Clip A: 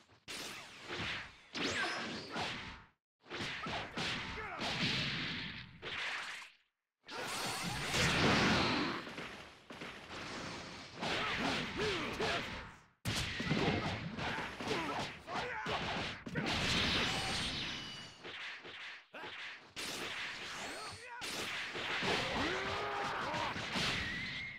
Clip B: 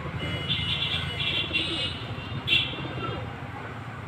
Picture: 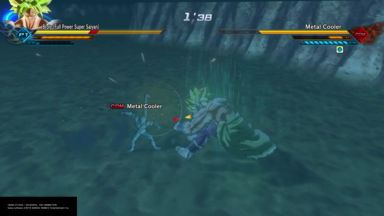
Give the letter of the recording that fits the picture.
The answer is A